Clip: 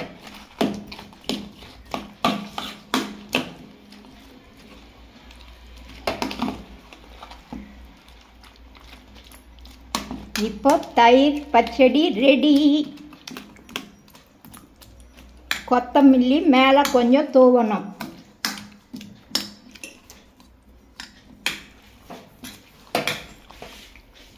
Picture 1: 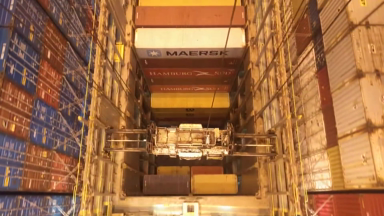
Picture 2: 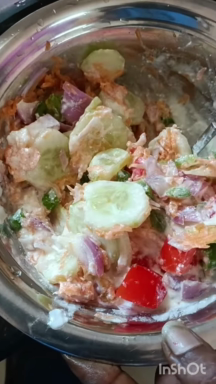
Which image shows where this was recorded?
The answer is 2